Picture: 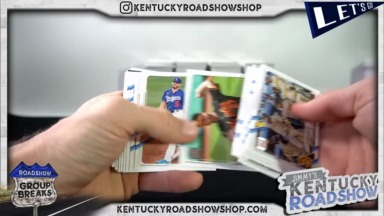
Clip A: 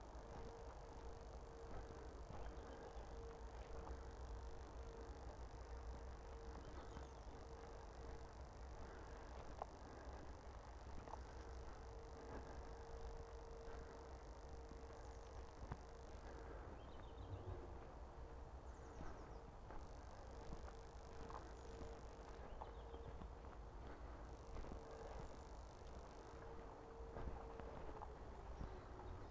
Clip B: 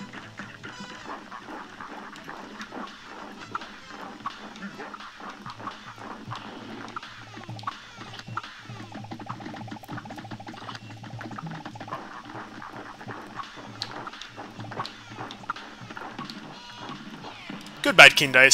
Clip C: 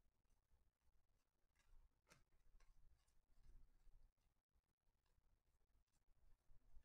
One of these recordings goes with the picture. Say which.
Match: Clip C